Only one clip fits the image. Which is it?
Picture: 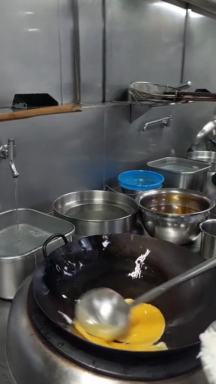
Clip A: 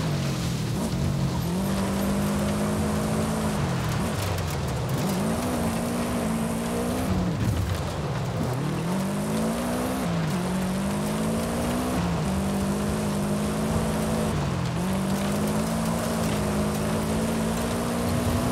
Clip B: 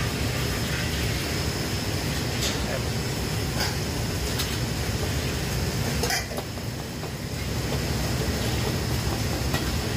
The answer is B